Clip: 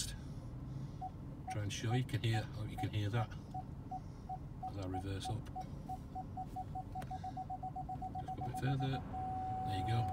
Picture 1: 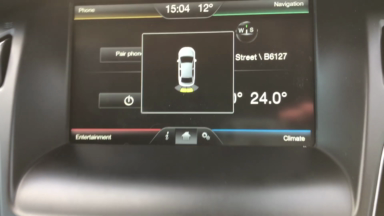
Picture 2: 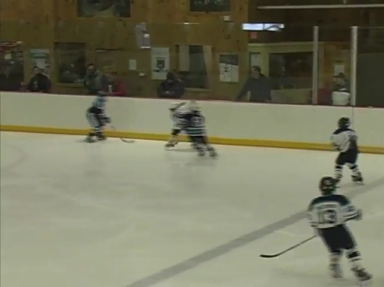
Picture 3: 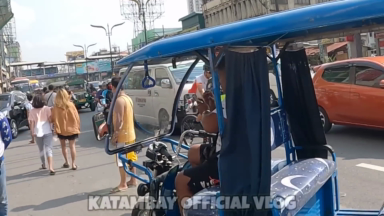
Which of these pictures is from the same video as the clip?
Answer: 1